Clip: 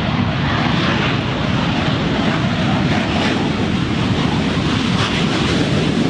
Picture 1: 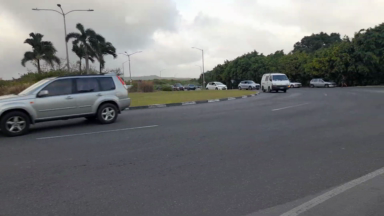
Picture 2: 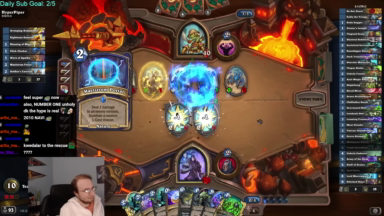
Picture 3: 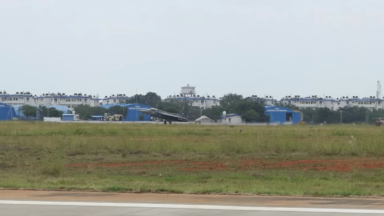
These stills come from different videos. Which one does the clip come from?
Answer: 3